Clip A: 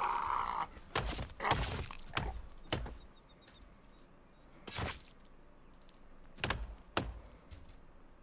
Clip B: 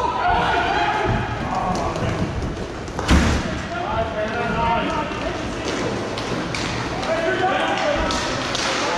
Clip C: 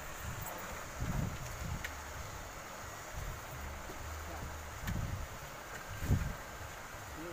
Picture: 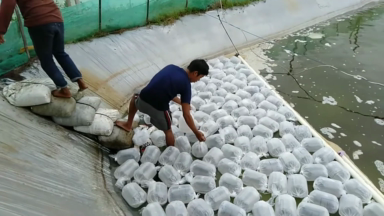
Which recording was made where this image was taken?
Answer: C